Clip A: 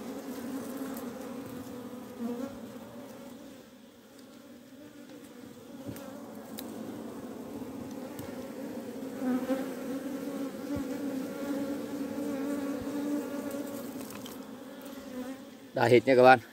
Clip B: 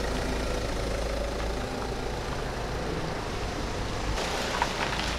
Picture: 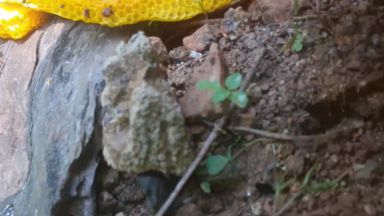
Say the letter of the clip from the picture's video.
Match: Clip A